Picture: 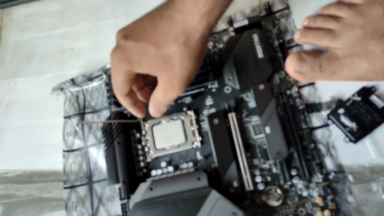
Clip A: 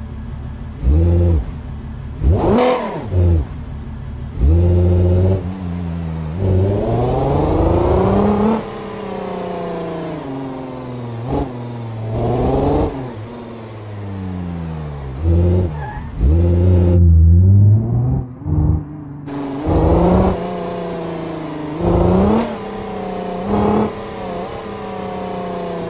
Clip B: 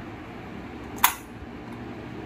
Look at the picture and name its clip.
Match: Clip B